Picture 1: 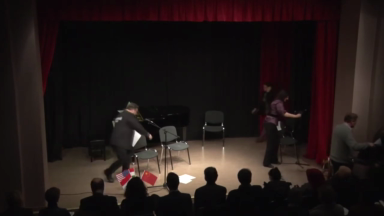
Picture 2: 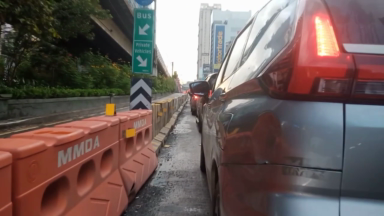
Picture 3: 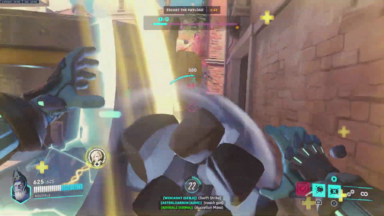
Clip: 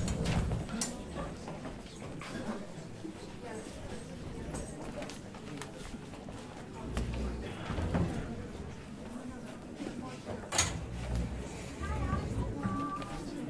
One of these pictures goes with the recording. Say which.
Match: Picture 1